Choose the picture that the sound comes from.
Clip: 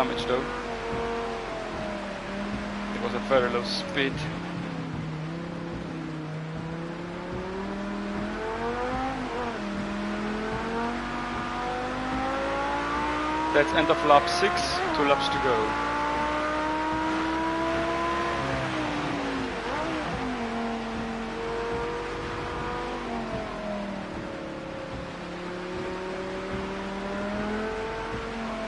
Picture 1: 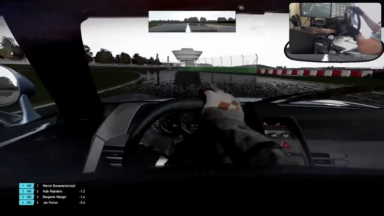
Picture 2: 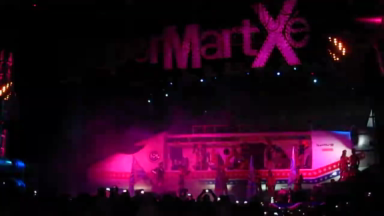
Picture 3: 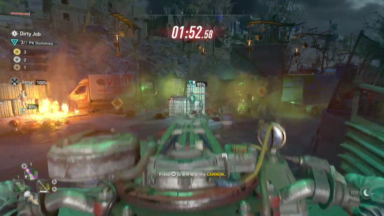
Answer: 1